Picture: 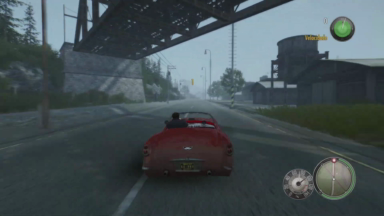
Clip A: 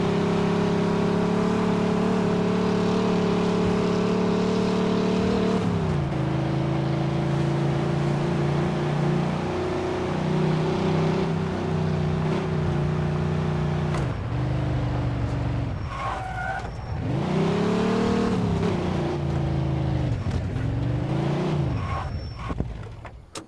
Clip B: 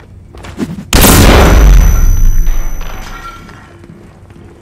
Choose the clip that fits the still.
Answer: A